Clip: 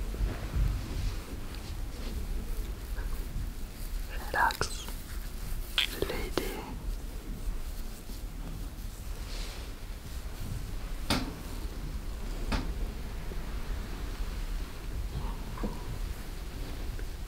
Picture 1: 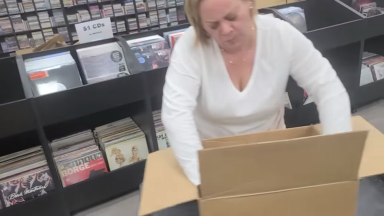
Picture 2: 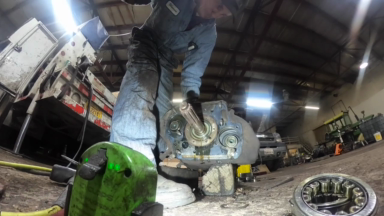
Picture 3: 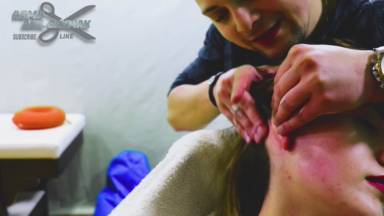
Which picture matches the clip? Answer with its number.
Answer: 3